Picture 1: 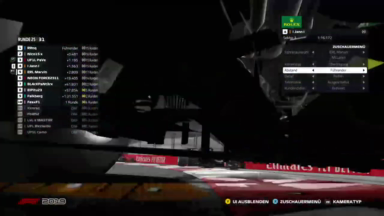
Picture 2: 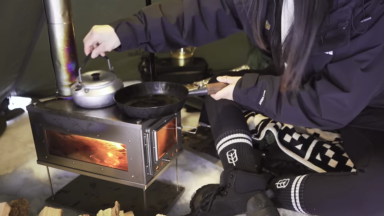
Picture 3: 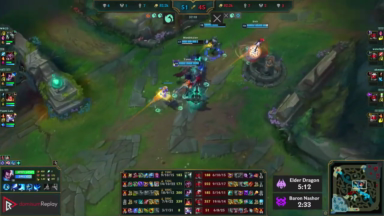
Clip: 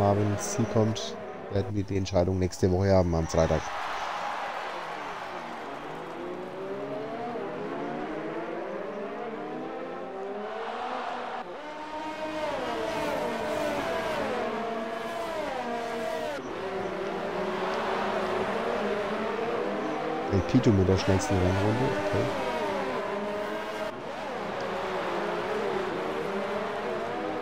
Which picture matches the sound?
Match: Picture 1